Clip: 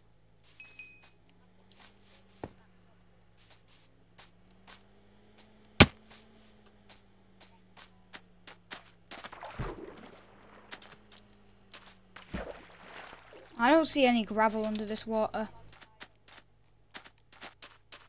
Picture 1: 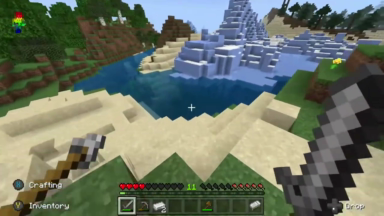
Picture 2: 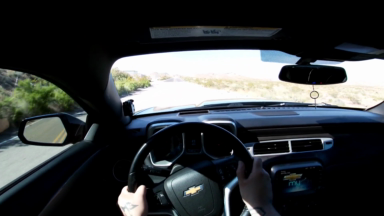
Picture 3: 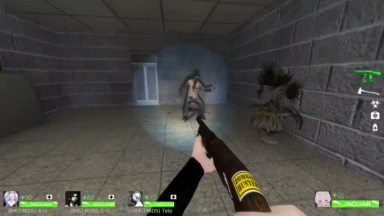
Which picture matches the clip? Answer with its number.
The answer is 1